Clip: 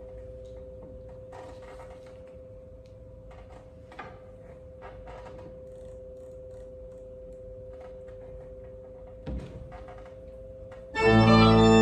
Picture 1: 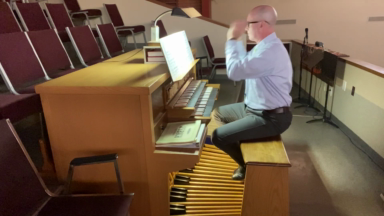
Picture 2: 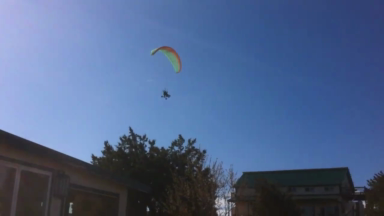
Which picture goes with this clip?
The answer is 1